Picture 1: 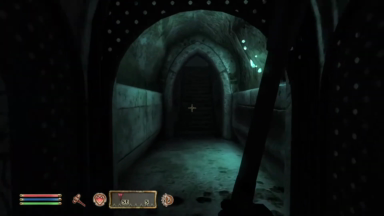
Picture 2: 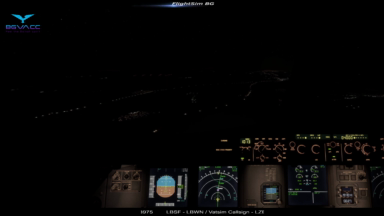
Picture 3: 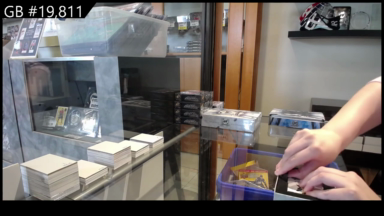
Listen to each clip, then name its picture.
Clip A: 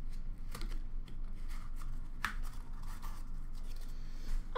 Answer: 3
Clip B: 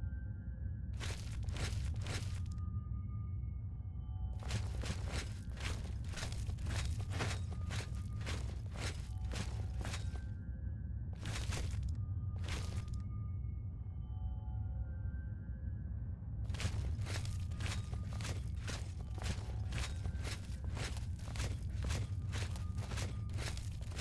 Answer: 1